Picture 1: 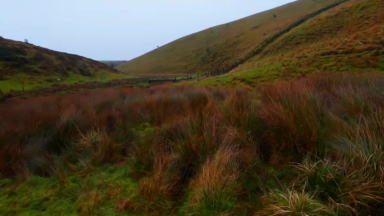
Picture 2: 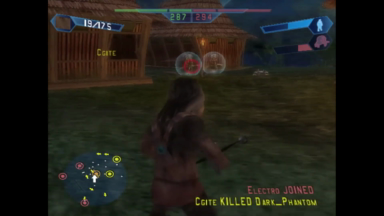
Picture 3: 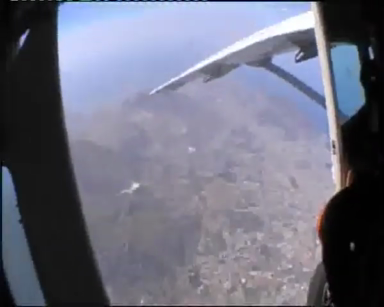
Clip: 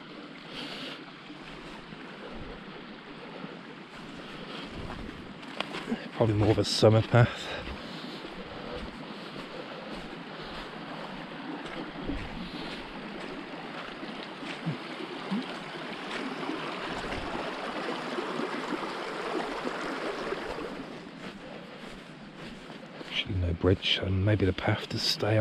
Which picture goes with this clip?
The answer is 1